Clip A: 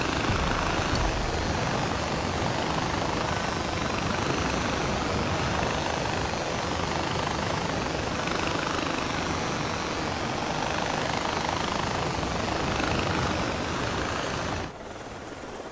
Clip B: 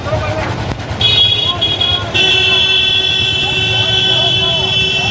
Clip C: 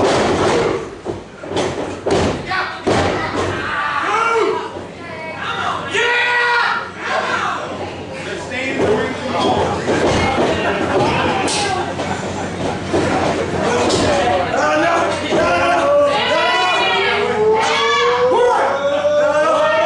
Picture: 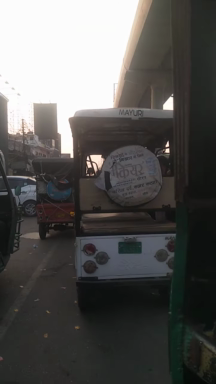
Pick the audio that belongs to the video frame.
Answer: B